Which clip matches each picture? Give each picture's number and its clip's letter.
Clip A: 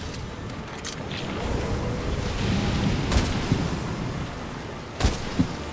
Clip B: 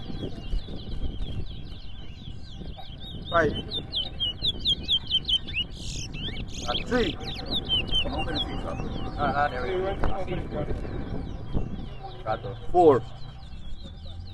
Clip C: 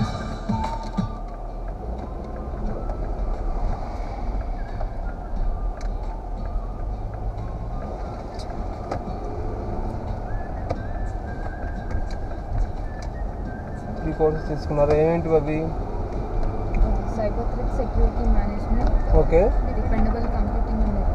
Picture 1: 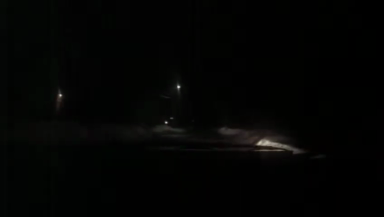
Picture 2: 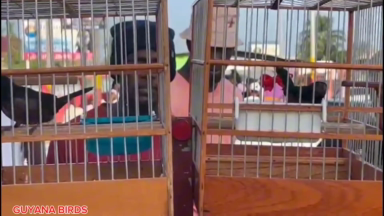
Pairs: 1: C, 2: B